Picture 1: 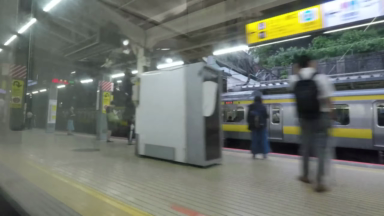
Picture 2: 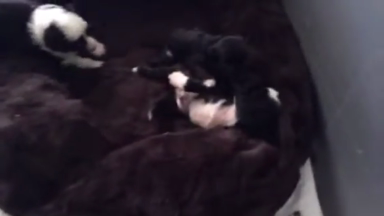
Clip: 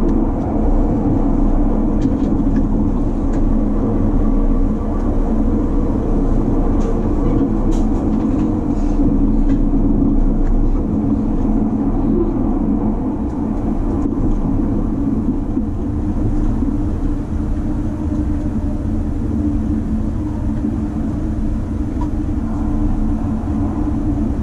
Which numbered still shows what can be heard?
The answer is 1